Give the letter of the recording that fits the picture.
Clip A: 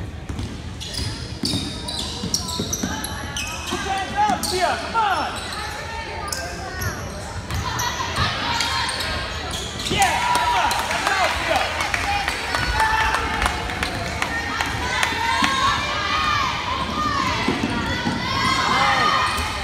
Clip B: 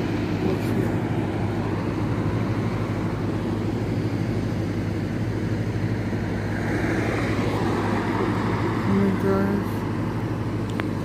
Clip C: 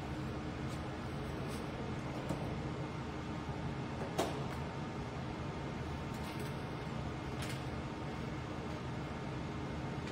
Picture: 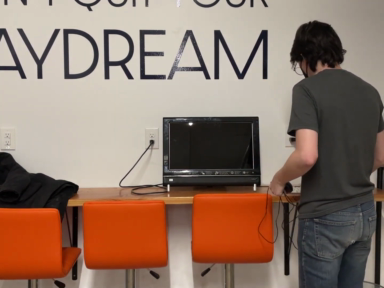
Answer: C